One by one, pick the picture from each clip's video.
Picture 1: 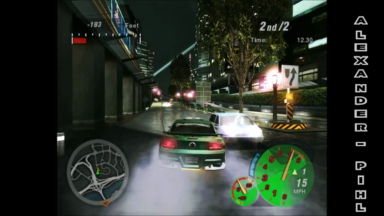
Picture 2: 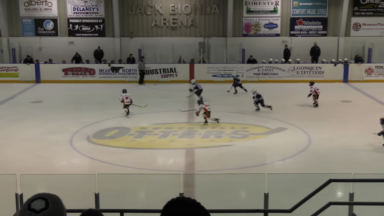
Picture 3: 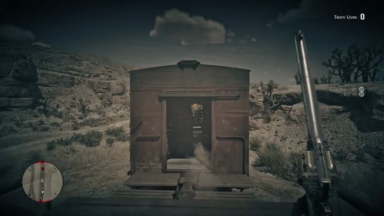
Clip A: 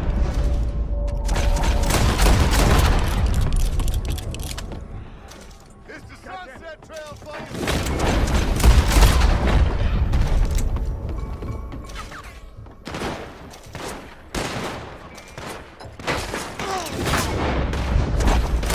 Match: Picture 3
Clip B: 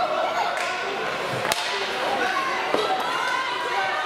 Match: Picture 2